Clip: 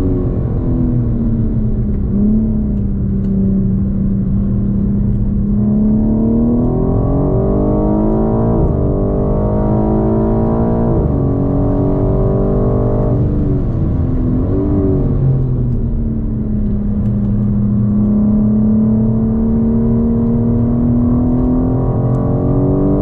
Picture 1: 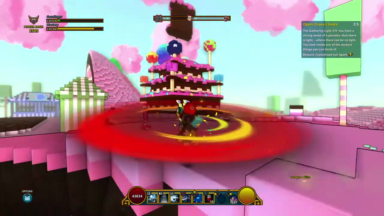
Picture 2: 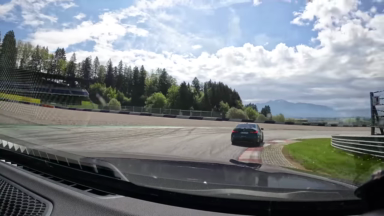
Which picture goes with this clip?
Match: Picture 2